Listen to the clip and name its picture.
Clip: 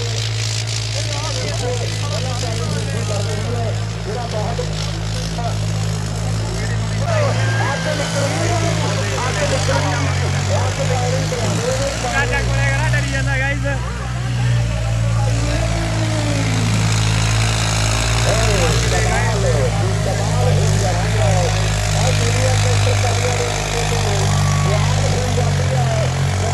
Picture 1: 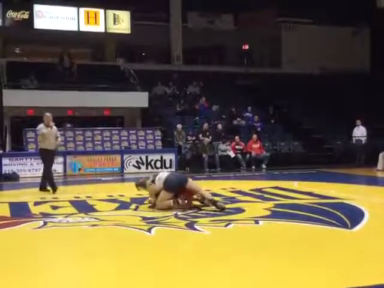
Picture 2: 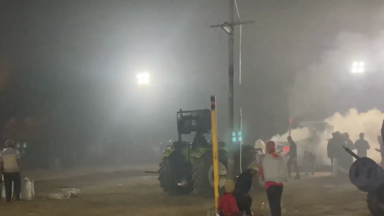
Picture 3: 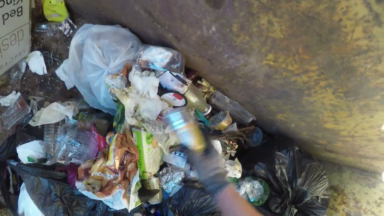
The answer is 2